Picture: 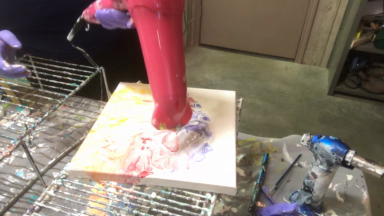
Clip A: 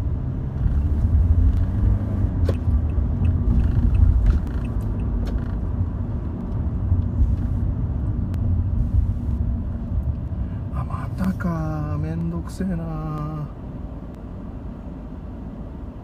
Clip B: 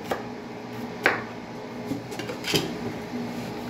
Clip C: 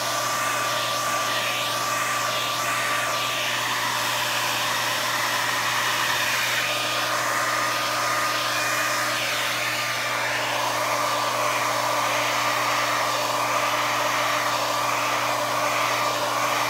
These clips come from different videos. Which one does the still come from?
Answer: C